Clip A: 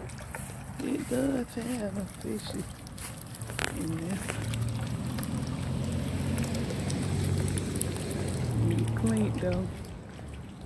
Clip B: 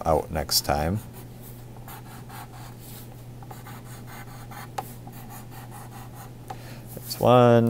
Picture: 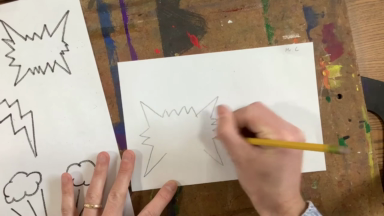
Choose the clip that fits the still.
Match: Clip B